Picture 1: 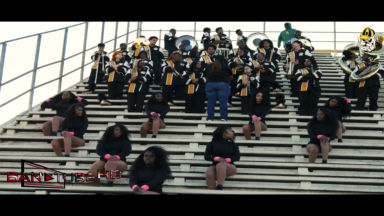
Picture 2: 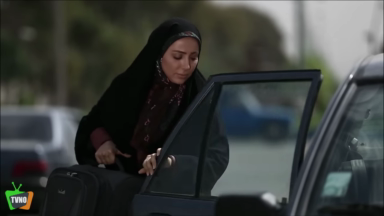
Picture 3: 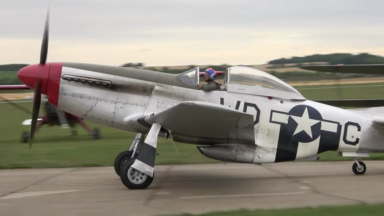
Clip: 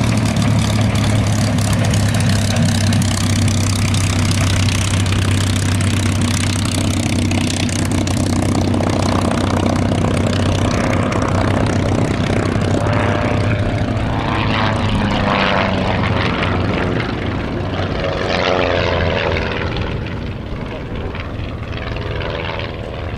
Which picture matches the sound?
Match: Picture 3